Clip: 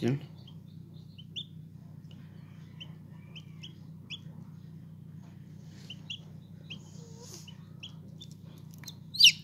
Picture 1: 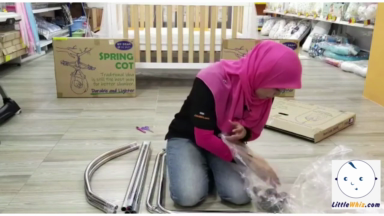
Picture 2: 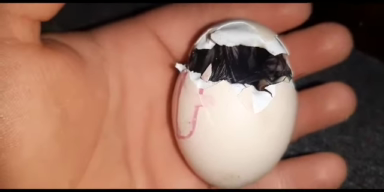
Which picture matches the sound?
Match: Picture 2